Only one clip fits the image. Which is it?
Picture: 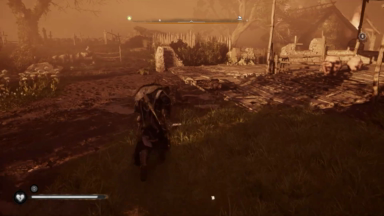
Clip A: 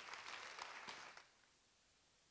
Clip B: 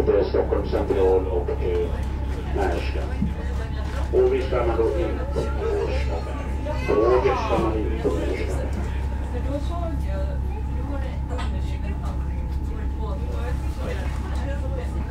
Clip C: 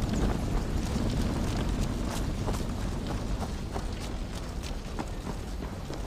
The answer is C